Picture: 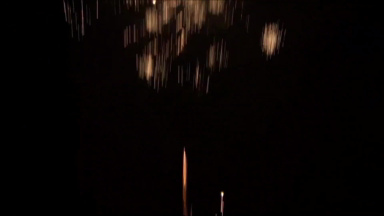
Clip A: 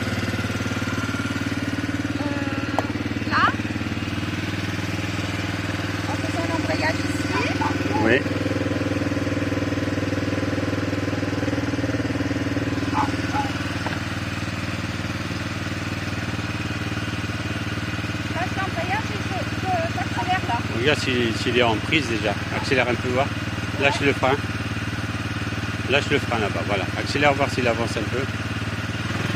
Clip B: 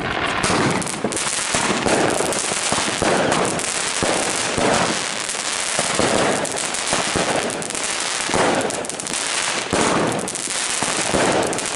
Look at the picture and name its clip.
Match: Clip B